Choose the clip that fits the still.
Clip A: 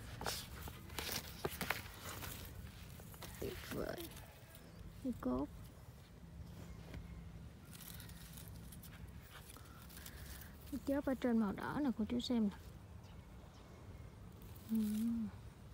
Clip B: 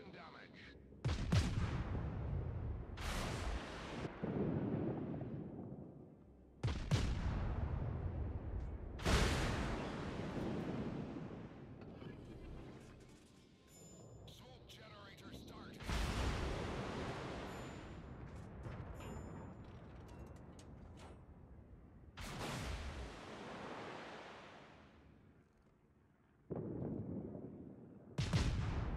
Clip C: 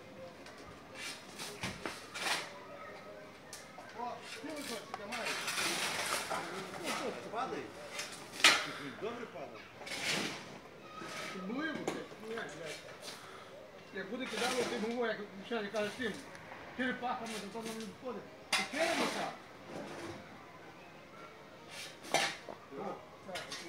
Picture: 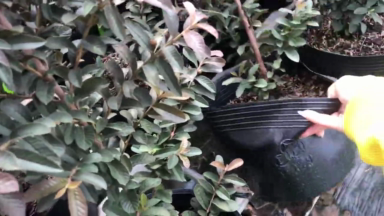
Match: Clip A